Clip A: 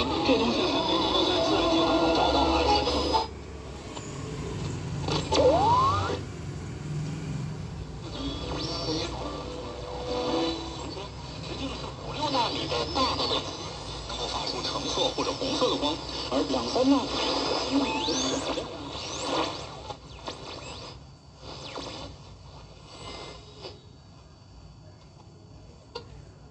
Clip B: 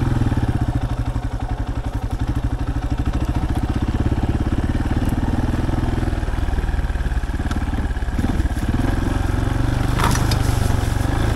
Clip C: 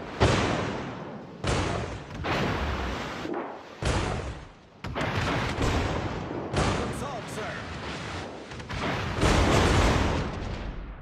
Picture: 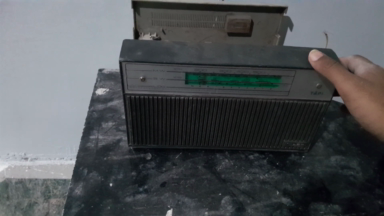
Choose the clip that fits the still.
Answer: A